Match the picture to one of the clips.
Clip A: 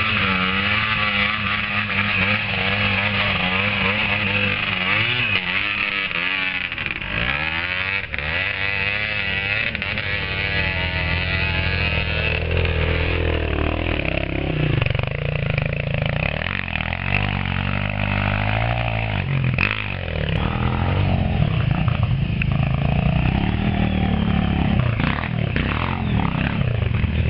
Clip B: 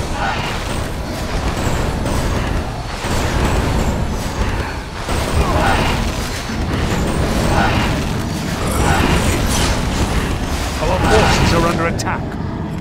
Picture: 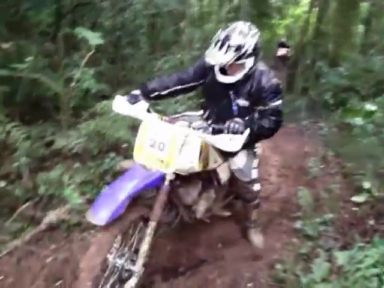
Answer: A